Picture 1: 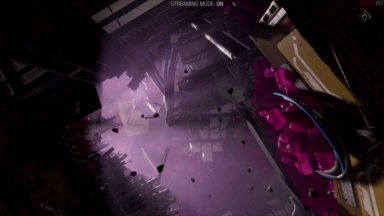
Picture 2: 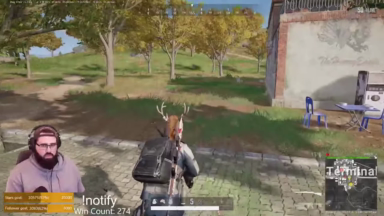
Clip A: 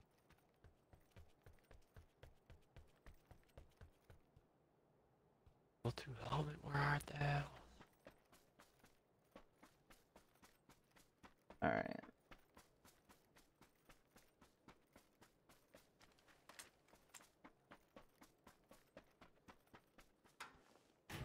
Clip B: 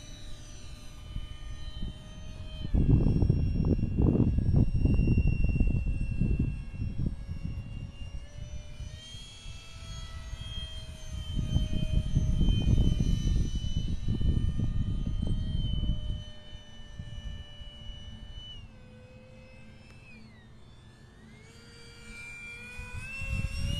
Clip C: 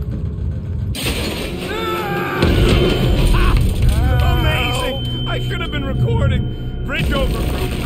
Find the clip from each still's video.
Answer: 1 C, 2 A